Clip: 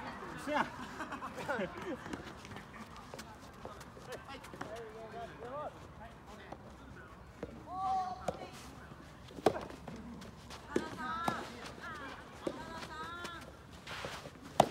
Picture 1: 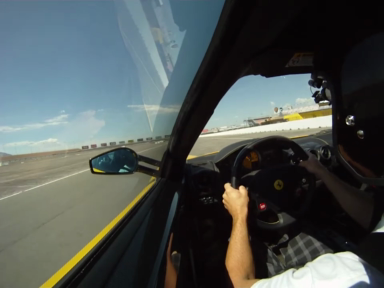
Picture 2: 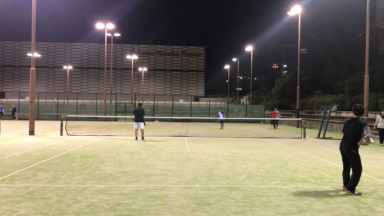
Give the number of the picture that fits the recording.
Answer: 2